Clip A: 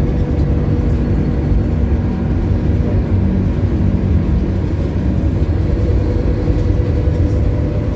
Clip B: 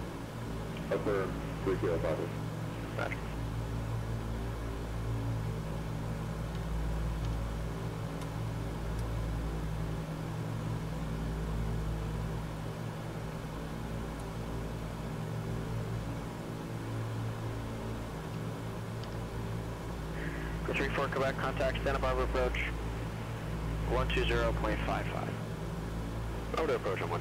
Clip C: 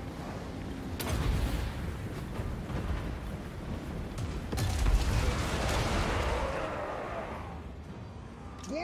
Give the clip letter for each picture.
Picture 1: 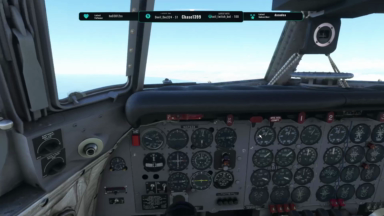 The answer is B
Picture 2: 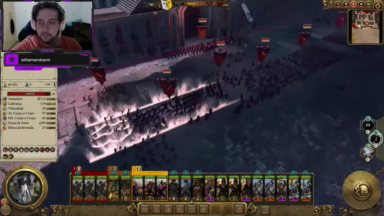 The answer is C